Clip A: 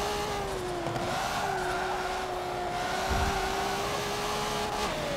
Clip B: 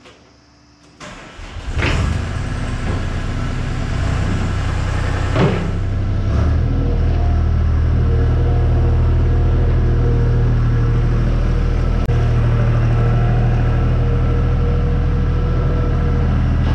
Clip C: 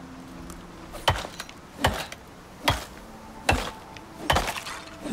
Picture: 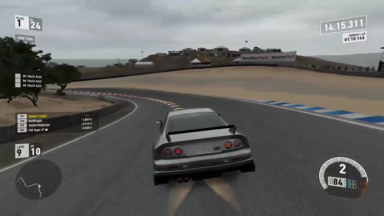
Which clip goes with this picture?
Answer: A